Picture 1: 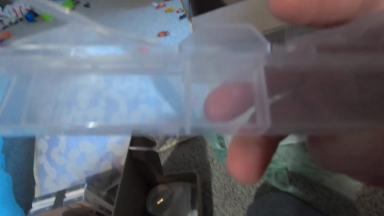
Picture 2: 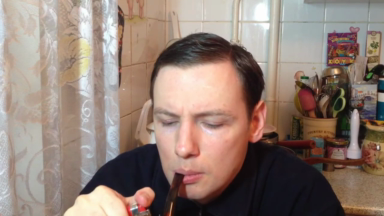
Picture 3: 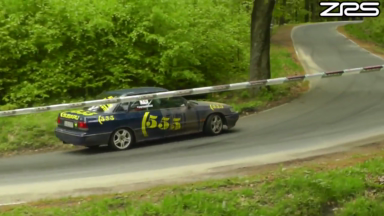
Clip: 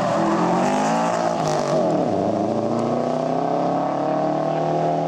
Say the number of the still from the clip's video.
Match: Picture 3